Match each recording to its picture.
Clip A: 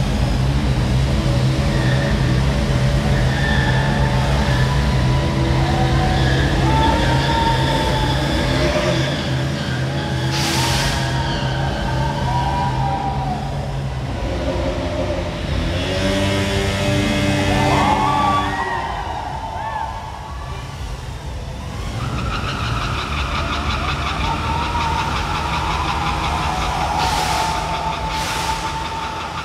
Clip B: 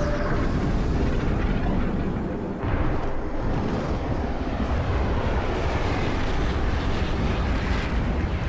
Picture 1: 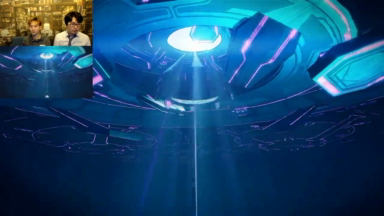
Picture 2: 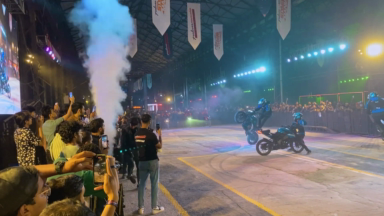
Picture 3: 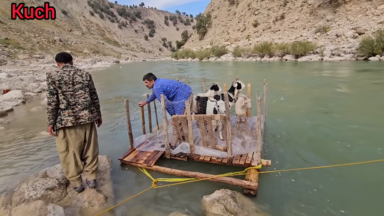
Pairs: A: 2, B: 1